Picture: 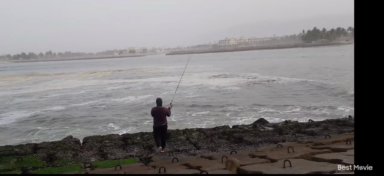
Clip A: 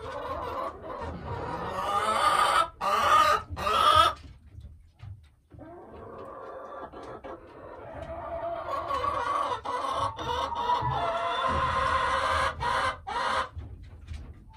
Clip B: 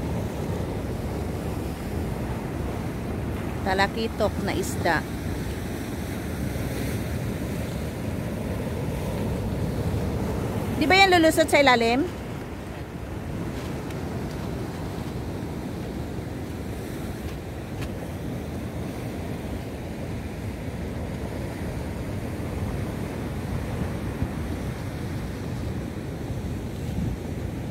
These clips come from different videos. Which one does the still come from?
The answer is B